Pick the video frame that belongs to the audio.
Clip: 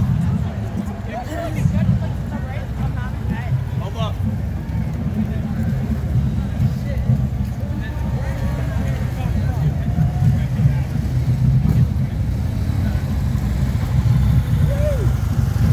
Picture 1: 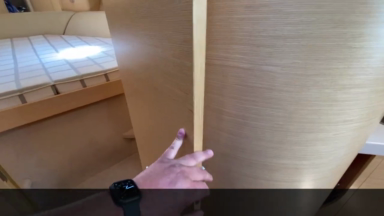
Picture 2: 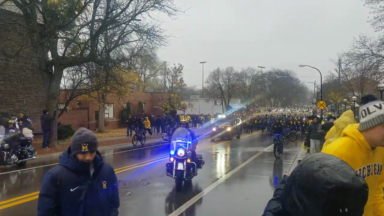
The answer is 2